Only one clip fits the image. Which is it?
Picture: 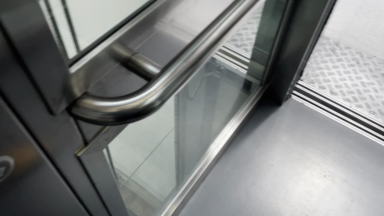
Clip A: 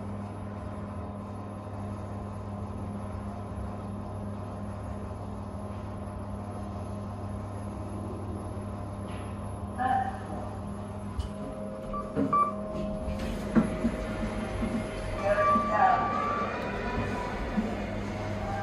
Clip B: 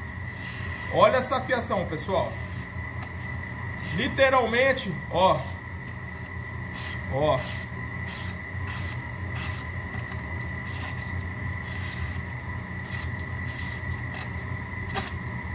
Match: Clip A